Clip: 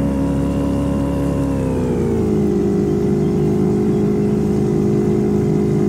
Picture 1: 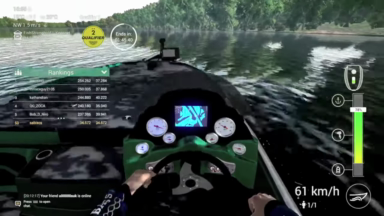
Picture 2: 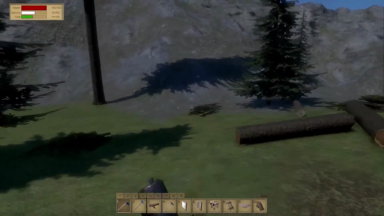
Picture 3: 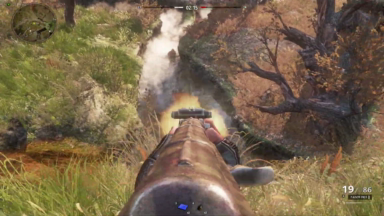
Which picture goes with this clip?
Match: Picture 1